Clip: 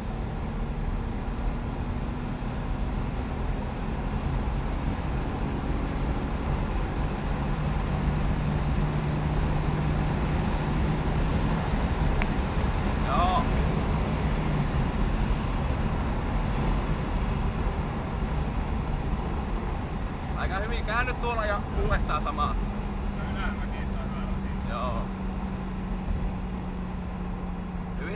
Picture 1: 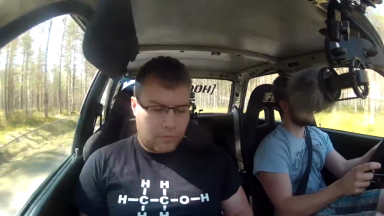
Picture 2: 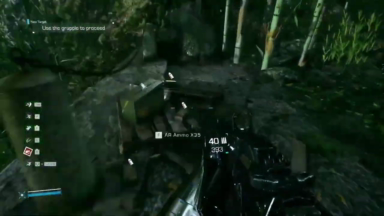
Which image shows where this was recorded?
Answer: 1